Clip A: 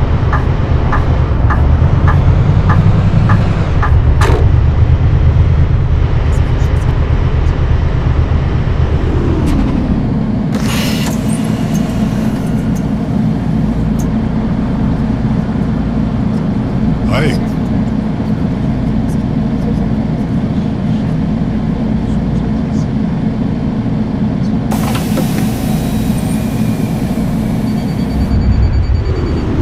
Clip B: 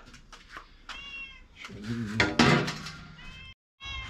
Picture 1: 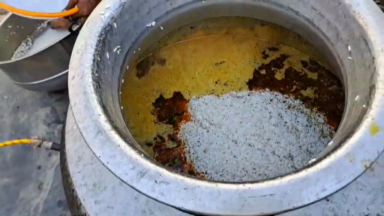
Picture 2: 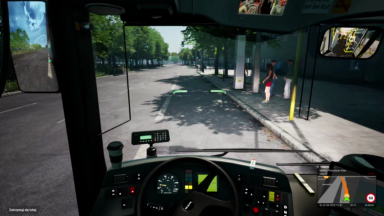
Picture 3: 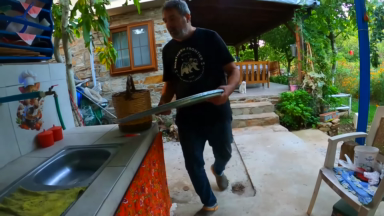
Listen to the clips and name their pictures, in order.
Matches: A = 2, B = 3